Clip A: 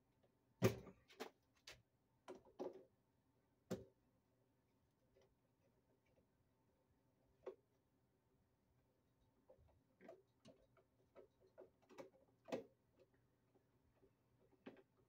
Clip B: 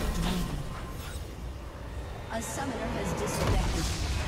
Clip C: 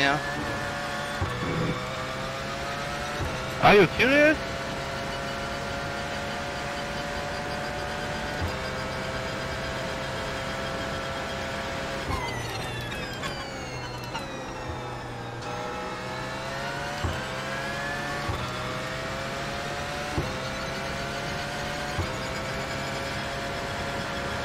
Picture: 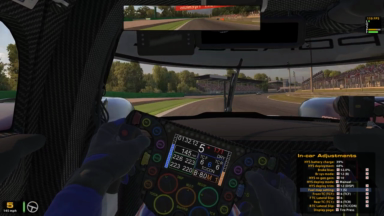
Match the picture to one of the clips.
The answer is C